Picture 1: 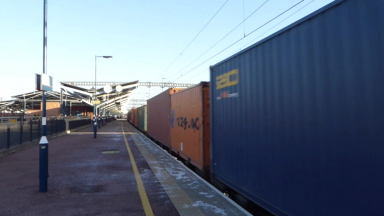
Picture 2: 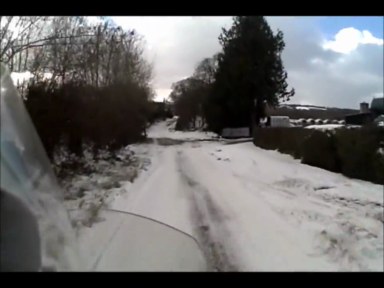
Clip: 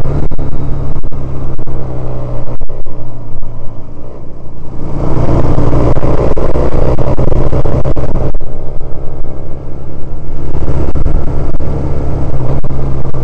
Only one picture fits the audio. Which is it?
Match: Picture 2